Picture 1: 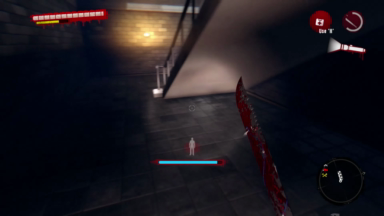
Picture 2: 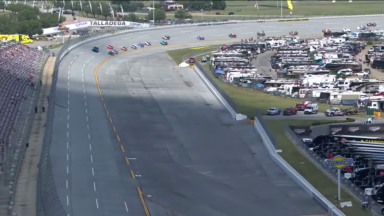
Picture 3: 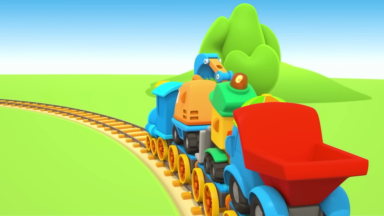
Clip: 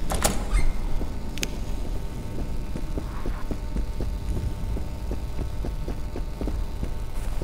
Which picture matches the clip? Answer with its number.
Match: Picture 1